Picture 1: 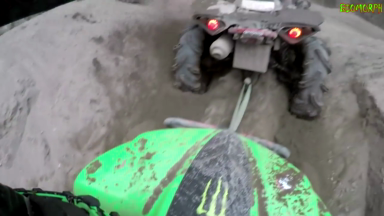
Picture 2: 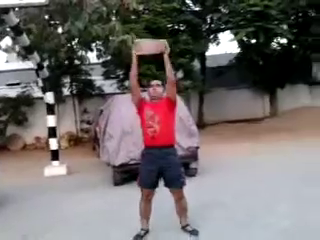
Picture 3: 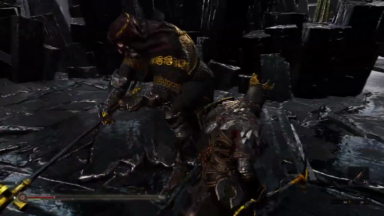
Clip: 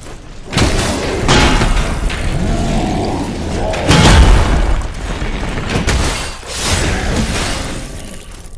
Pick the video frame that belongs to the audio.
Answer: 3